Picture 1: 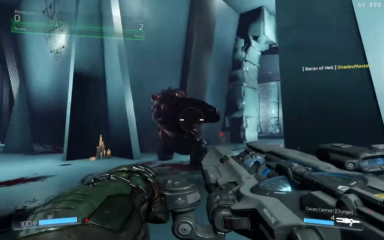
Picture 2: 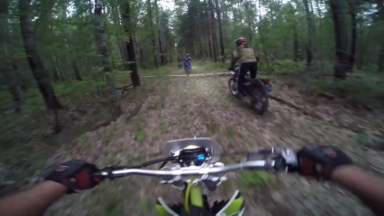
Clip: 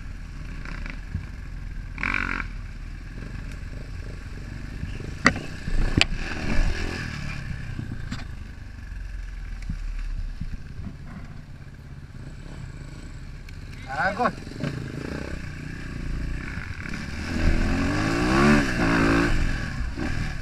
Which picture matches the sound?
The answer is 2